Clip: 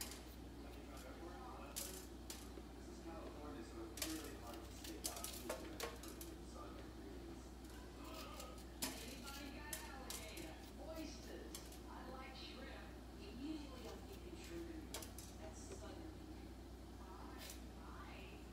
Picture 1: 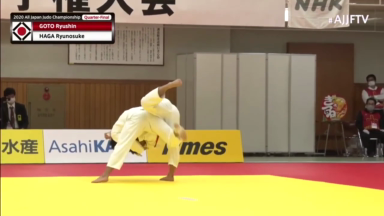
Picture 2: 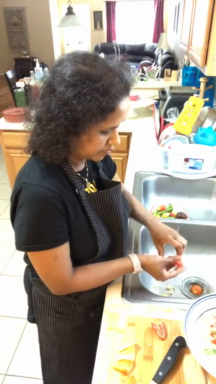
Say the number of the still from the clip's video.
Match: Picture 2